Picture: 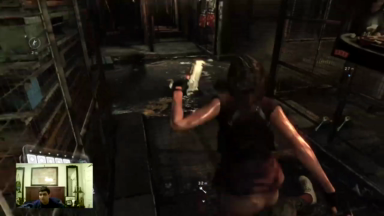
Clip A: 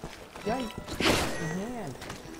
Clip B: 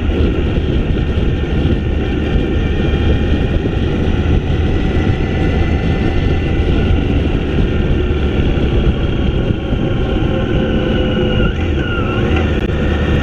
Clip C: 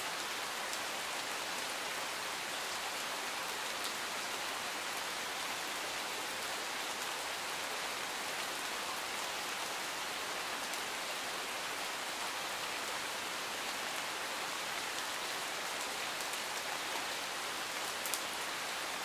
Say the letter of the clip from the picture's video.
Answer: A